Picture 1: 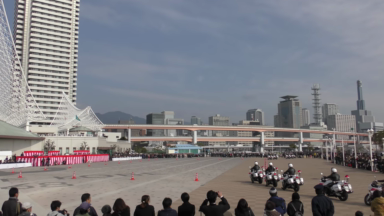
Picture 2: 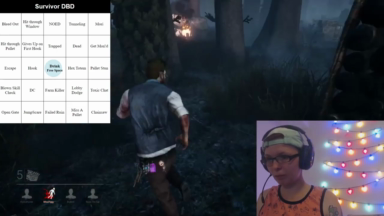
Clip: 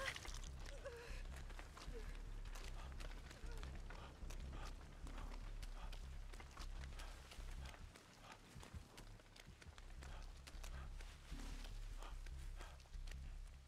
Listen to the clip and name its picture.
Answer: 2